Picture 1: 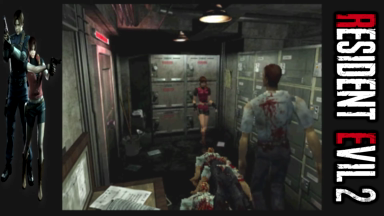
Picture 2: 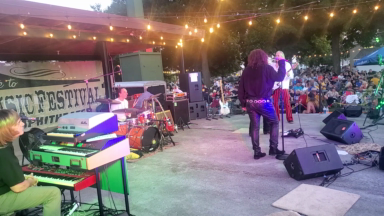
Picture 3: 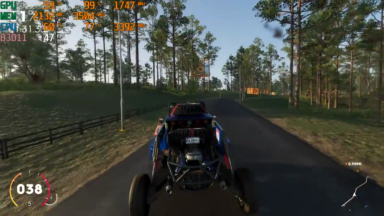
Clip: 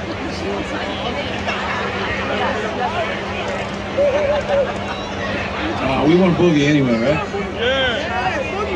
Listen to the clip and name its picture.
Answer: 2